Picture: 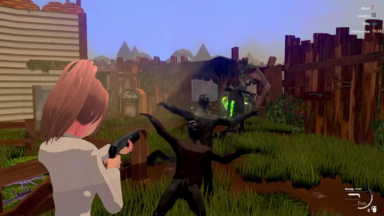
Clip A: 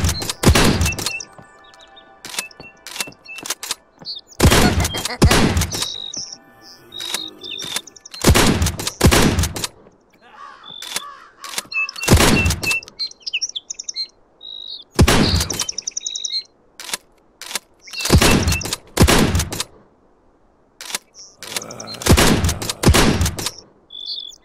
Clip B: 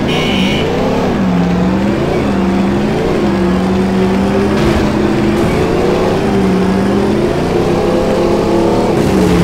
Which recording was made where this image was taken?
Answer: A